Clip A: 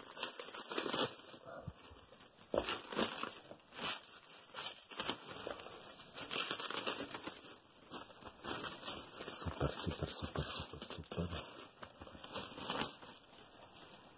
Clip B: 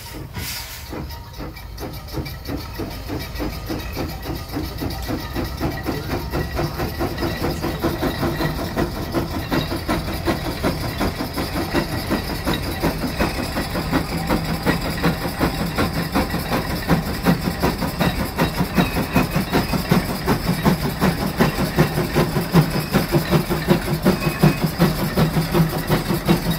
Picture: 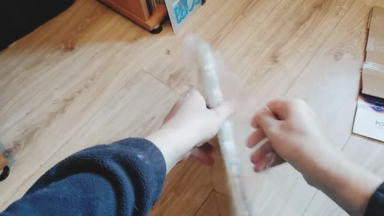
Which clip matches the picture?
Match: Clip A